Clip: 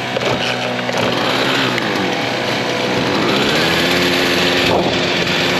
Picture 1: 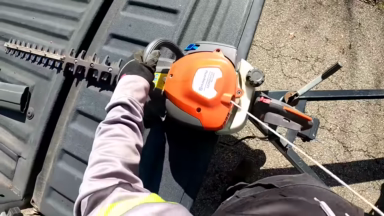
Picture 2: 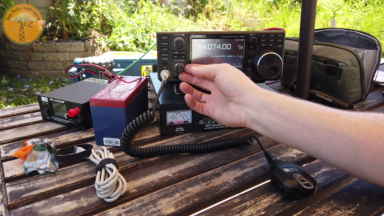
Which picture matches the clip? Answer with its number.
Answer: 1